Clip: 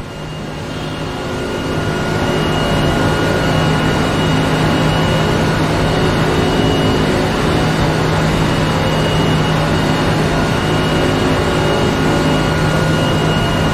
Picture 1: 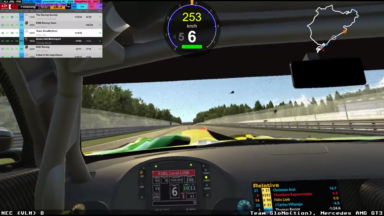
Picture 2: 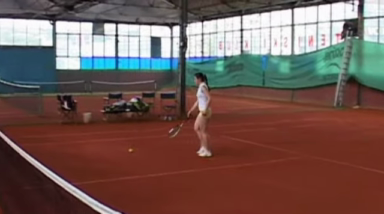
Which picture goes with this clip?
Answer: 1